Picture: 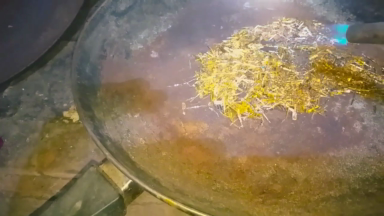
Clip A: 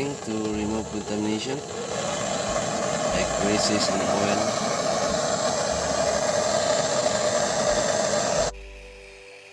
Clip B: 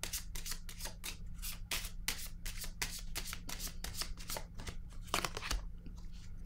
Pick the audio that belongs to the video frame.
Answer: A